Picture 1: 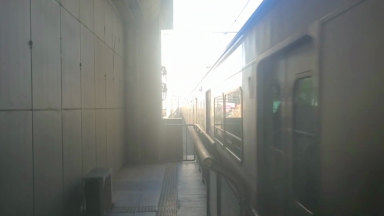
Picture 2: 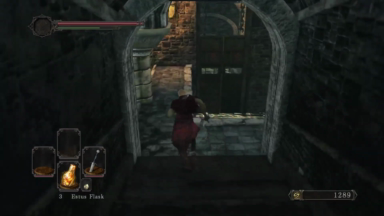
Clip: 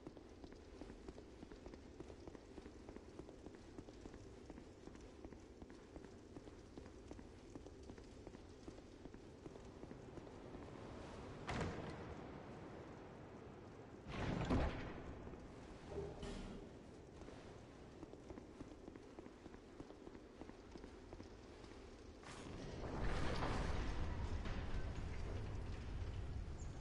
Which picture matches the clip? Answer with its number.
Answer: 2